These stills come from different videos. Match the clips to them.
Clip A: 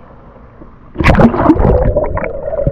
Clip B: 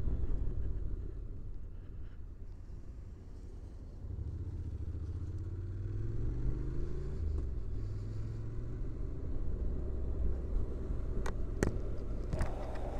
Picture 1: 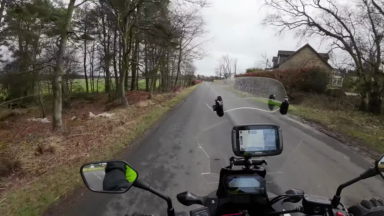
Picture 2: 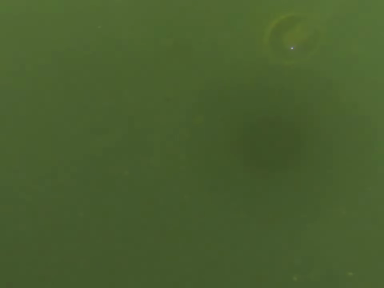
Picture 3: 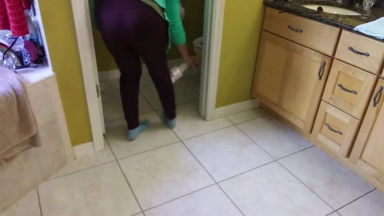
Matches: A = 2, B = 1